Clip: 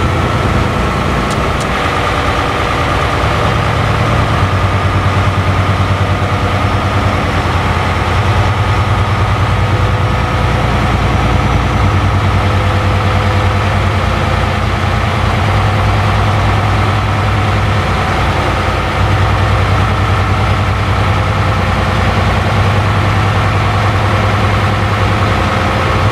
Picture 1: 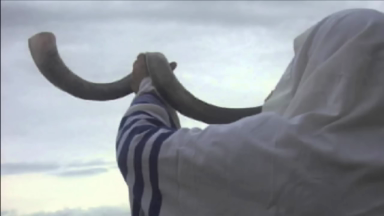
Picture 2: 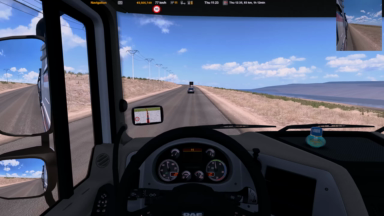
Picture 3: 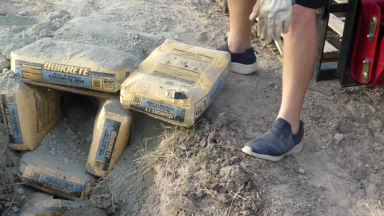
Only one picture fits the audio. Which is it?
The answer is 2